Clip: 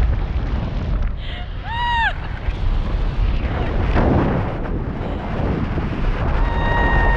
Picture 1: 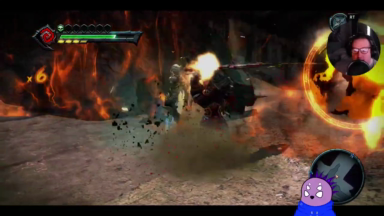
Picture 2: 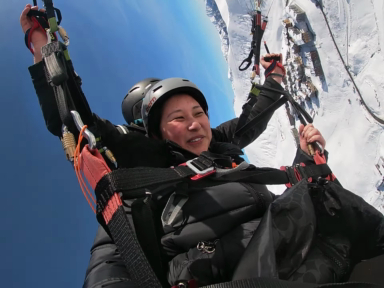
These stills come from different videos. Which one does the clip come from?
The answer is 2